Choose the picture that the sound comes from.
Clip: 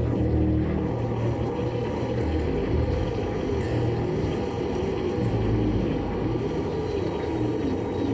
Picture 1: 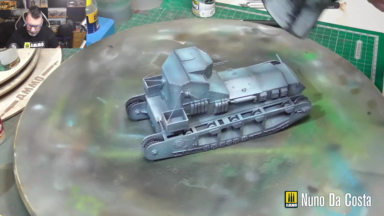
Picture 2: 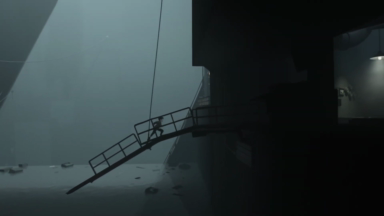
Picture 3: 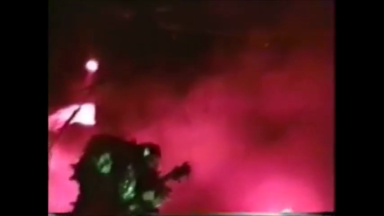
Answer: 3